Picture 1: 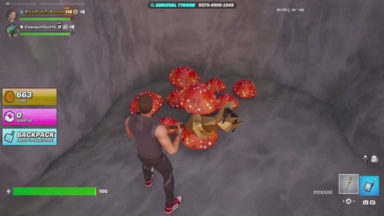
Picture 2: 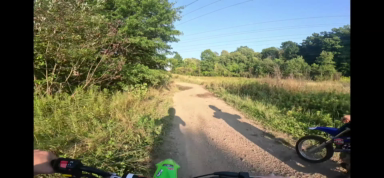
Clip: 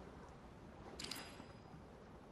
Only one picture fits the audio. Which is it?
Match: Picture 1